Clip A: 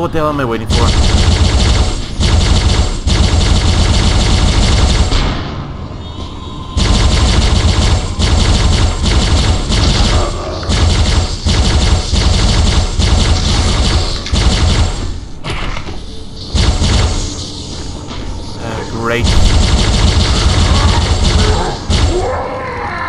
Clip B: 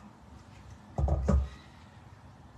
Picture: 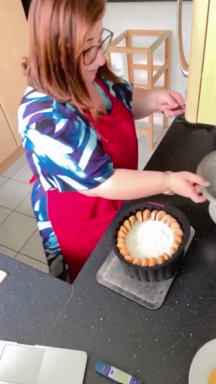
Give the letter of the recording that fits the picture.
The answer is B